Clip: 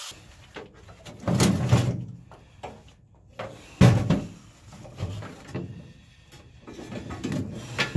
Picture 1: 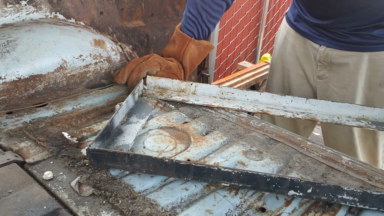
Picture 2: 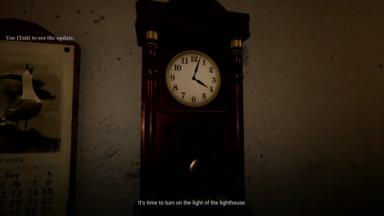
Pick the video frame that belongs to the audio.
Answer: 1